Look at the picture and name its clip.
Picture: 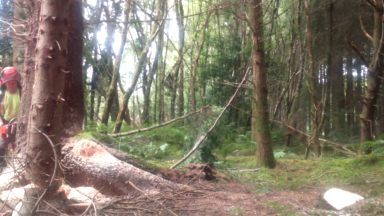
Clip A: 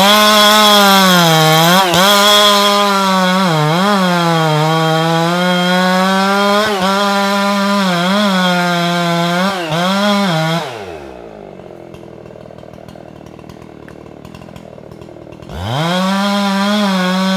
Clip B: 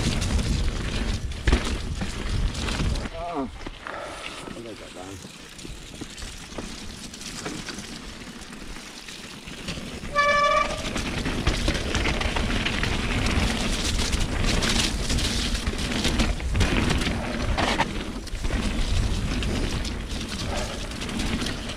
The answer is A